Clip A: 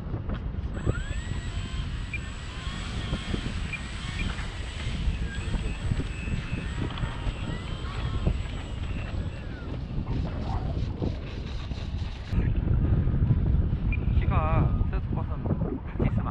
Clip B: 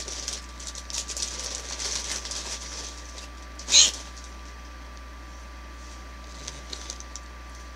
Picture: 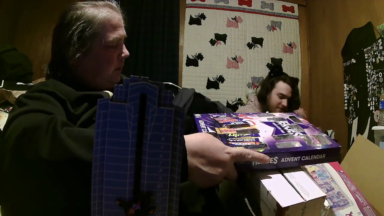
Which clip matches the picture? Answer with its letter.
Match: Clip B